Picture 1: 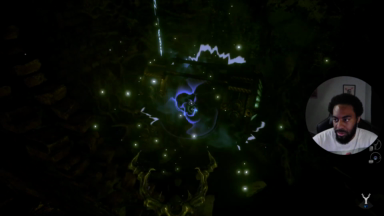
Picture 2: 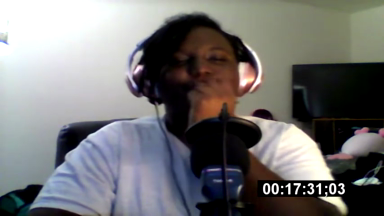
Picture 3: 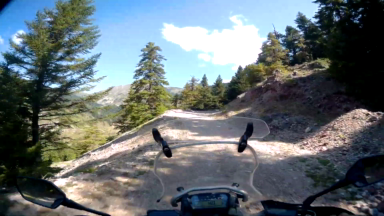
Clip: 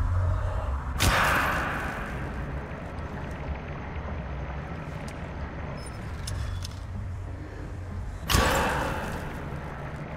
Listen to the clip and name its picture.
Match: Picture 1